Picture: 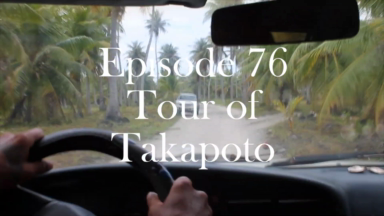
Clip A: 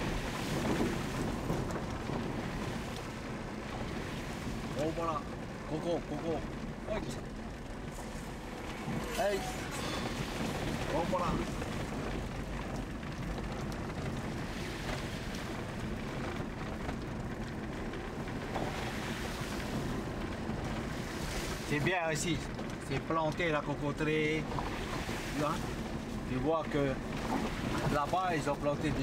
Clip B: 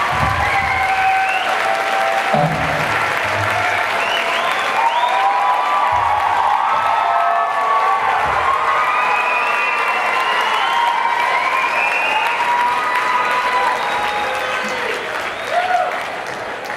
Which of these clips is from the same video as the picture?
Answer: A